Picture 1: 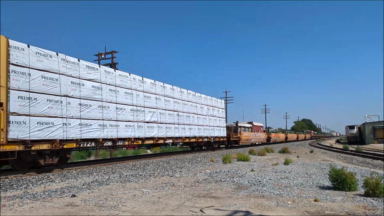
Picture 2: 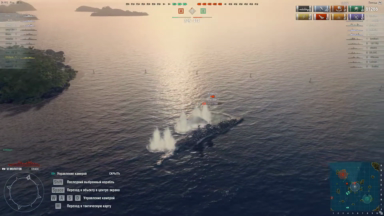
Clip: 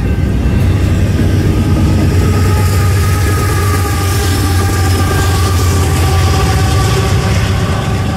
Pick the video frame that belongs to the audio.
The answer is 1